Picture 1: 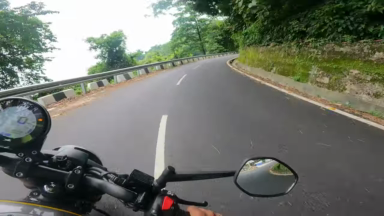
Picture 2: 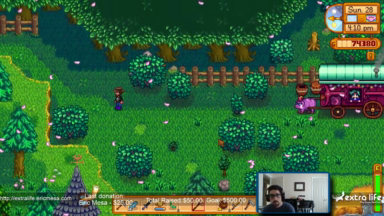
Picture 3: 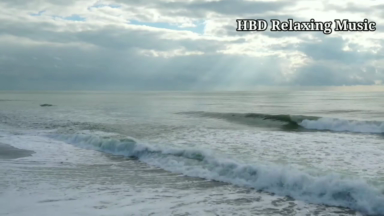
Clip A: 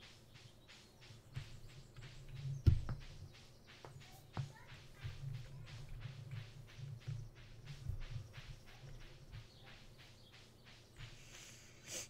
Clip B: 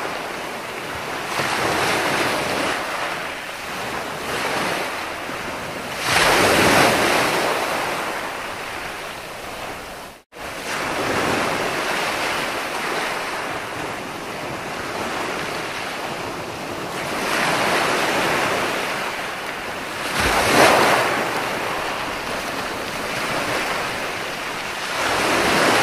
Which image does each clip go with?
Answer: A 2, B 3